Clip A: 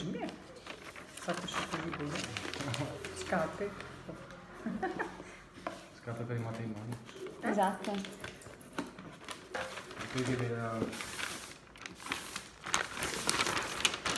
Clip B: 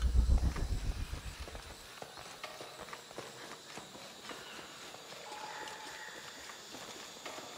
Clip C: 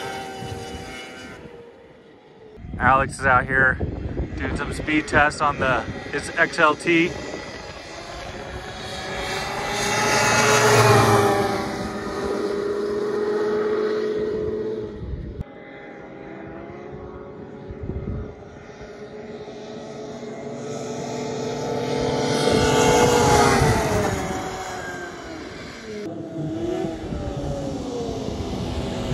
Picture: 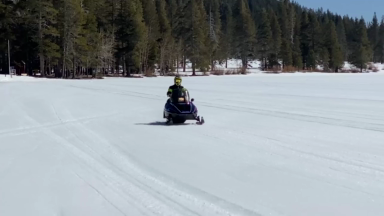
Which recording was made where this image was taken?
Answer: C